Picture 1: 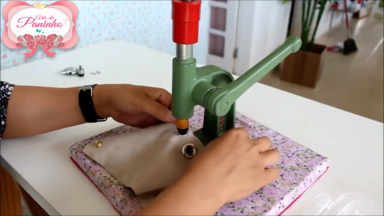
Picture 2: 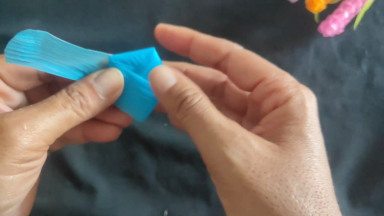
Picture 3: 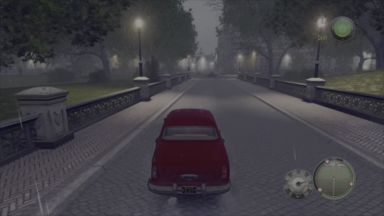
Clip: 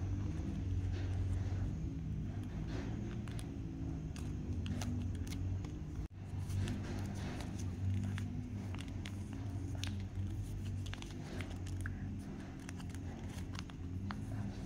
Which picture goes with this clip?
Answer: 2